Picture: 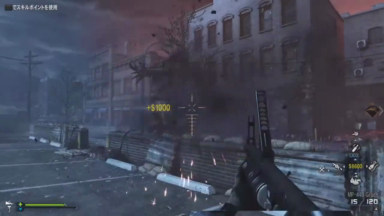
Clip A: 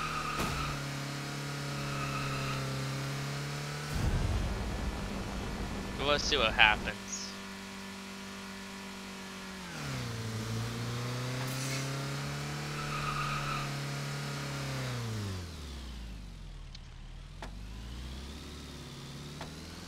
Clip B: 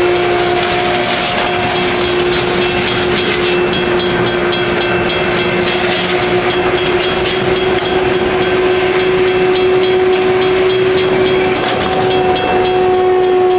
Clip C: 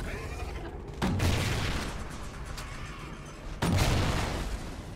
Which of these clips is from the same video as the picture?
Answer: C